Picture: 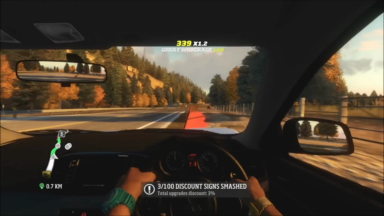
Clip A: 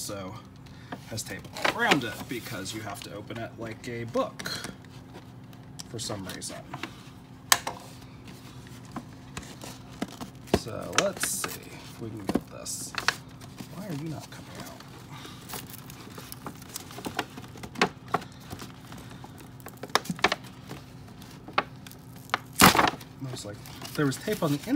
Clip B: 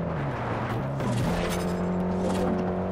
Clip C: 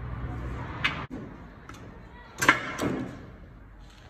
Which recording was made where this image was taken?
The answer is B